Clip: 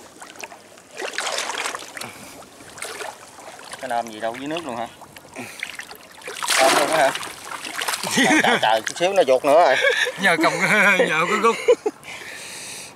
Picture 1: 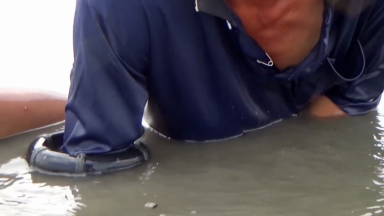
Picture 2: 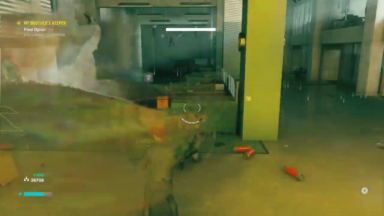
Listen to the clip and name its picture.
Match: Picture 1